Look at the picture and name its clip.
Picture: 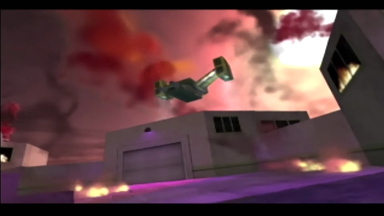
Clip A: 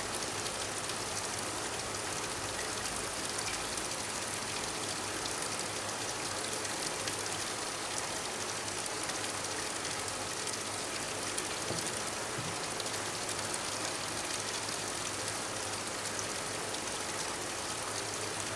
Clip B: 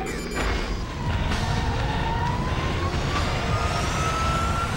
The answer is B